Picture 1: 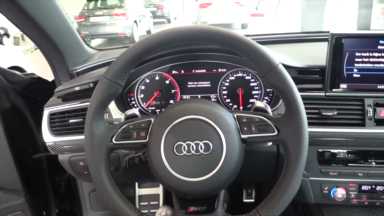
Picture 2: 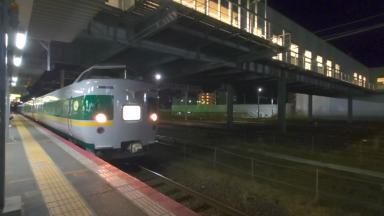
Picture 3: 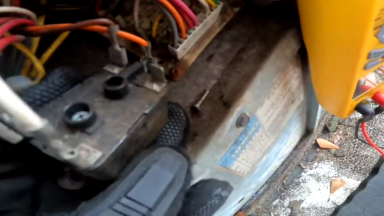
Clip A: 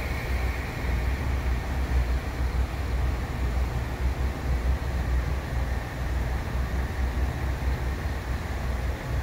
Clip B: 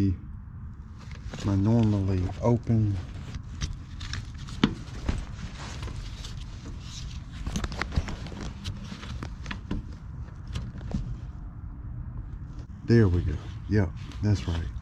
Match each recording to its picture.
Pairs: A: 2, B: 3